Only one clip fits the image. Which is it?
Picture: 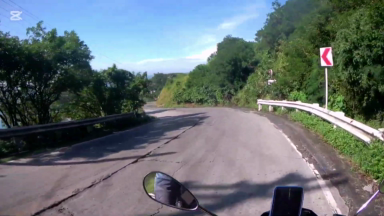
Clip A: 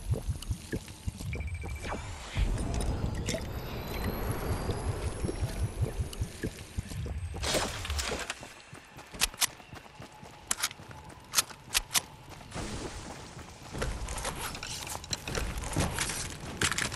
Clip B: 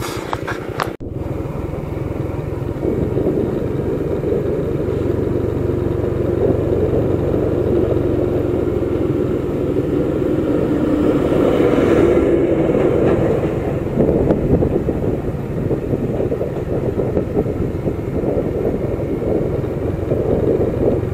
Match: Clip B